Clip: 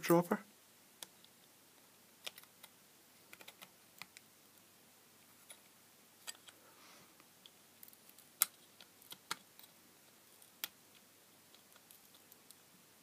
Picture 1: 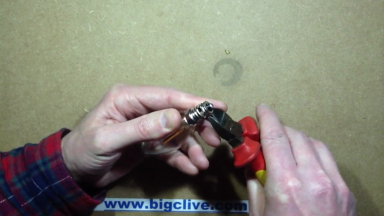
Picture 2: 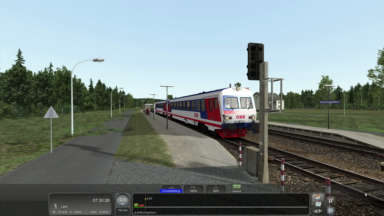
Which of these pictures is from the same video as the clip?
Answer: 1